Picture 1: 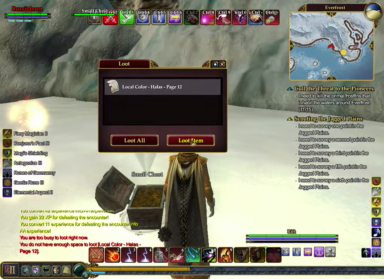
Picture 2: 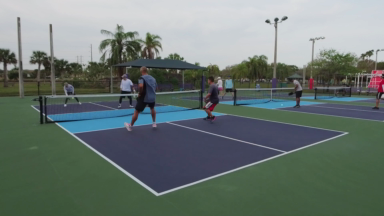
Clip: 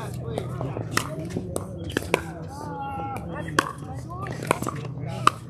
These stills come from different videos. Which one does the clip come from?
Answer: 2